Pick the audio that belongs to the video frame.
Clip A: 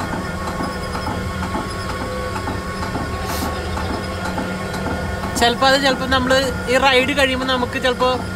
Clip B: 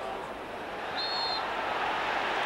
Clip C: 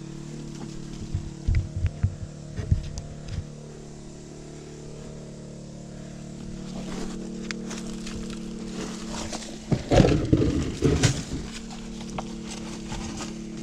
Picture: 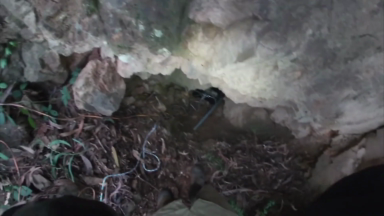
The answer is C